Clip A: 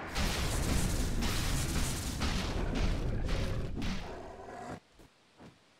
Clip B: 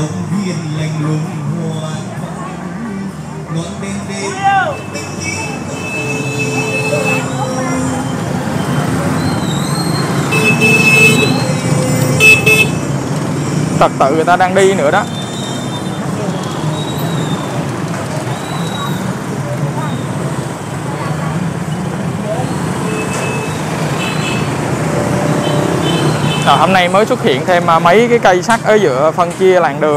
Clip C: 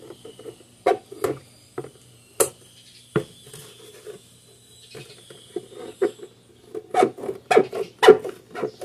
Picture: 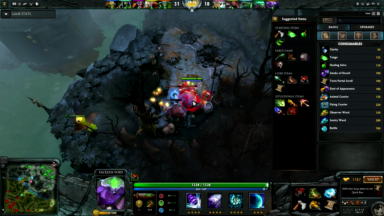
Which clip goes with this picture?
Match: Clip A